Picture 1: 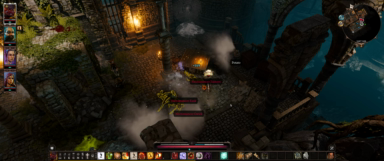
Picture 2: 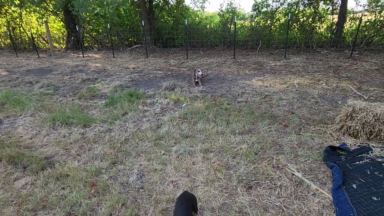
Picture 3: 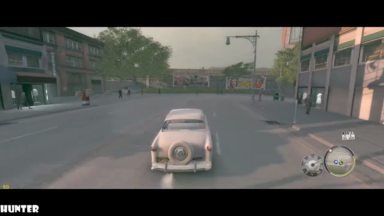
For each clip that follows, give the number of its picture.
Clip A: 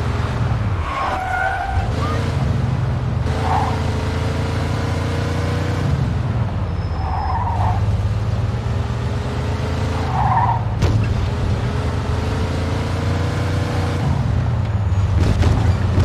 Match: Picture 3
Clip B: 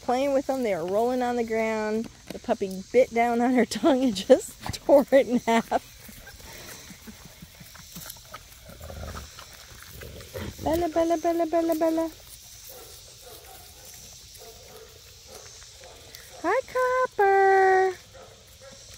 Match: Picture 2